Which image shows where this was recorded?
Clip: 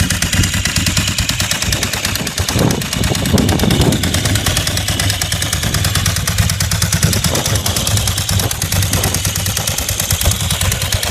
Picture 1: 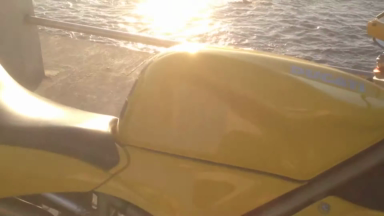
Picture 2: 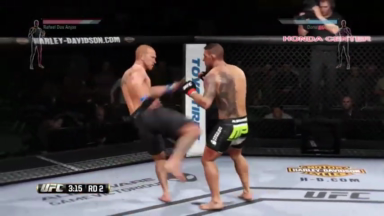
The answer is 1